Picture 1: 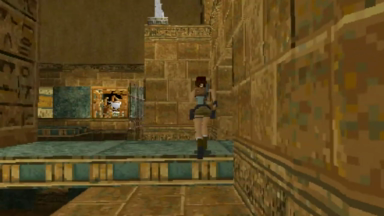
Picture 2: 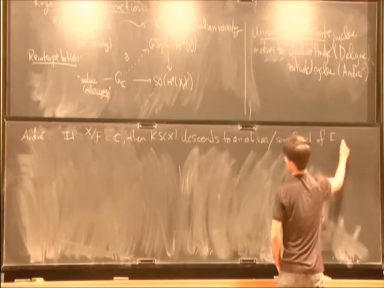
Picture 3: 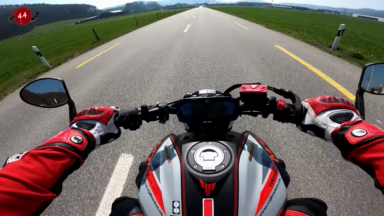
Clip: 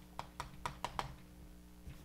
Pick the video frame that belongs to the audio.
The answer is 2